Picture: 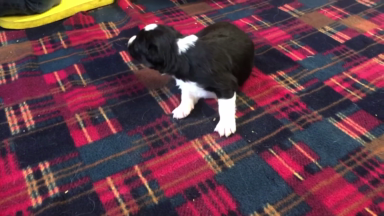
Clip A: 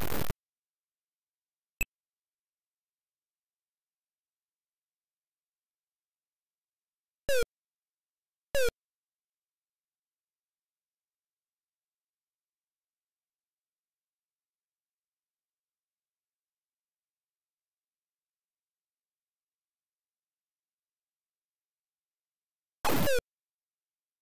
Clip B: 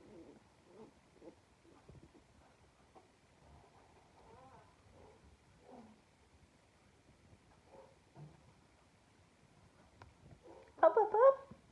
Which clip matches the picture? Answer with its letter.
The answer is B